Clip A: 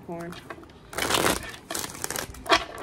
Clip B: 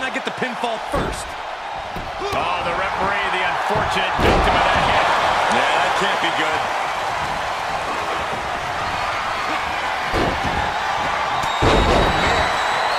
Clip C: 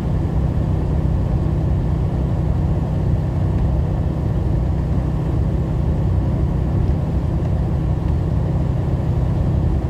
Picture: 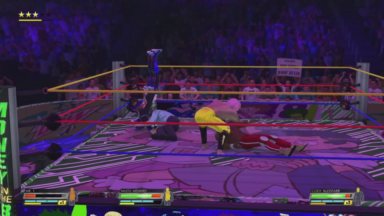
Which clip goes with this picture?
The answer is B